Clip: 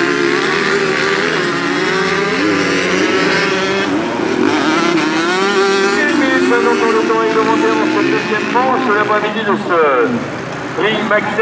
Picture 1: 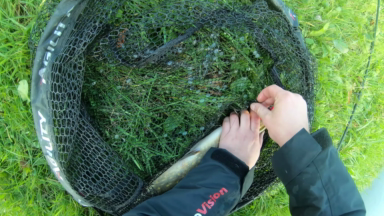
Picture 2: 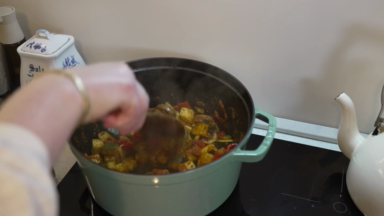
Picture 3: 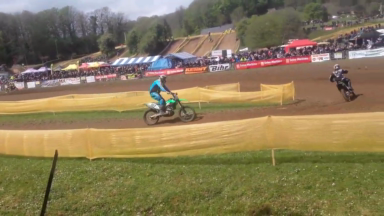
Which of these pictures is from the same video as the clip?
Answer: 3